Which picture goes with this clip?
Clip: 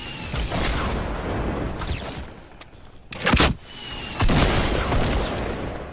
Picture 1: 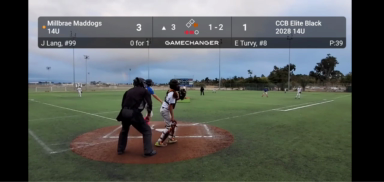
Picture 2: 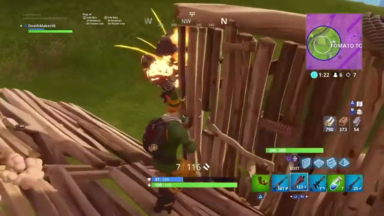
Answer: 2